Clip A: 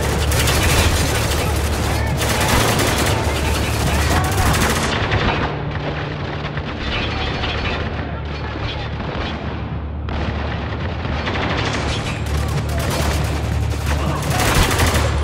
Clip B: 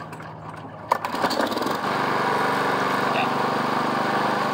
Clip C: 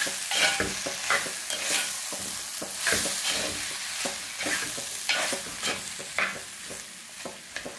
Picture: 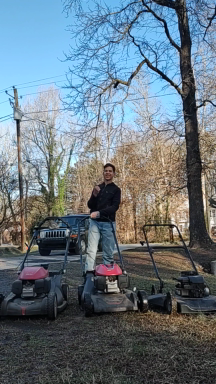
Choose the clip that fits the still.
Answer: B